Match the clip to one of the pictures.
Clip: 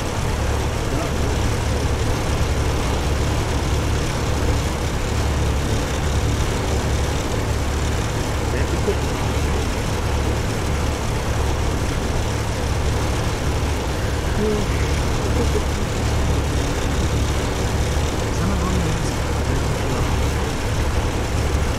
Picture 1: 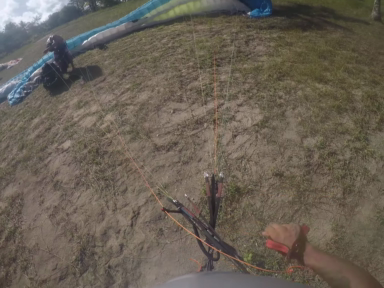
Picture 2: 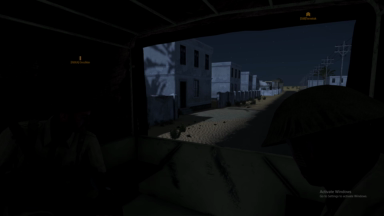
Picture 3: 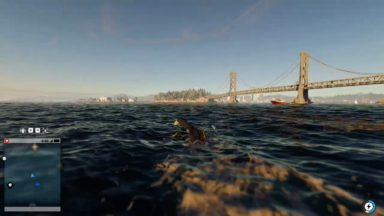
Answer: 2